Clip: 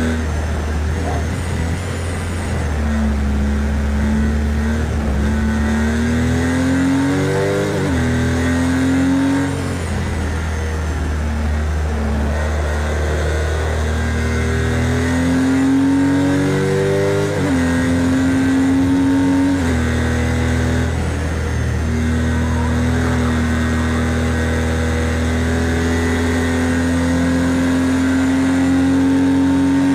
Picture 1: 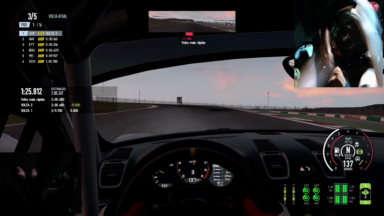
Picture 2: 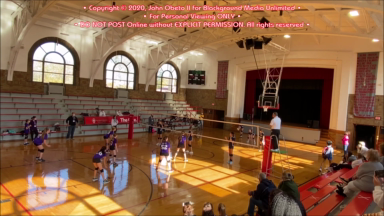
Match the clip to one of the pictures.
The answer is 1